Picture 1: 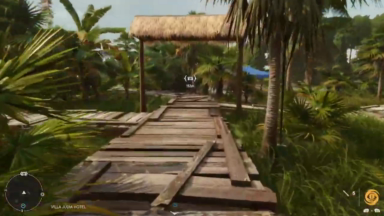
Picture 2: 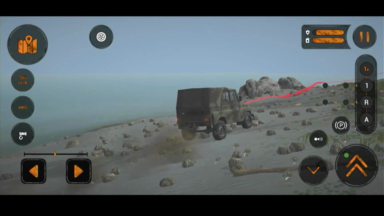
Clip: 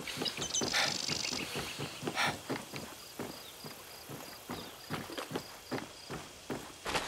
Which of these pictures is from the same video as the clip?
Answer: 1